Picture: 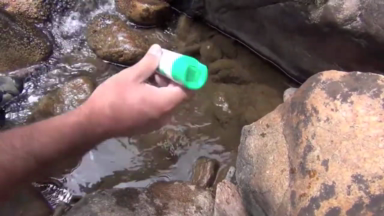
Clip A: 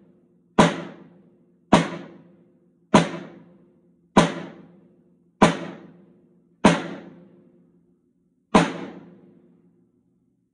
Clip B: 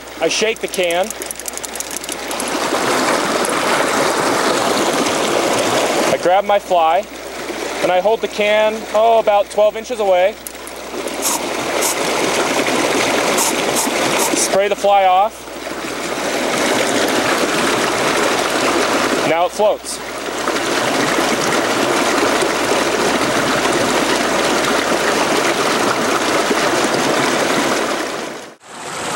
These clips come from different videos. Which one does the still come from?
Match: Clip B